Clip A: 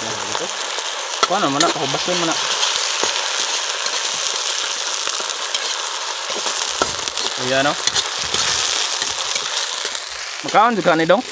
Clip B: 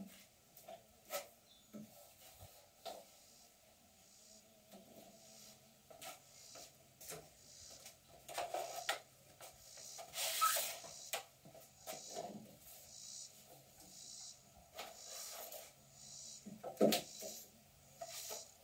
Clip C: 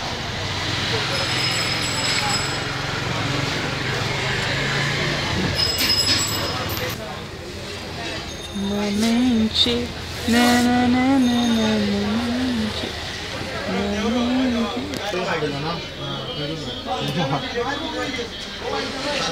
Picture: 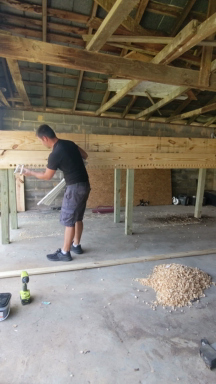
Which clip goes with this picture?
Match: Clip B